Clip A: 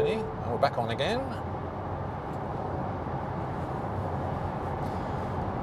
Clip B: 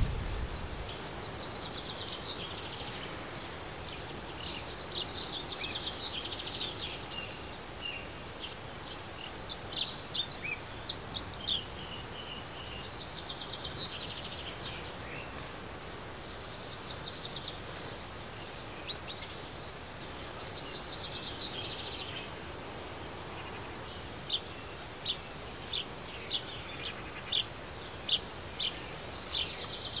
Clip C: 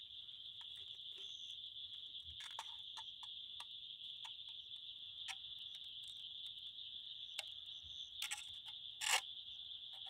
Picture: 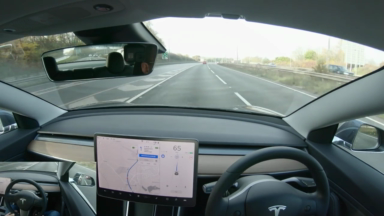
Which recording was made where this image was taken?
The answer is A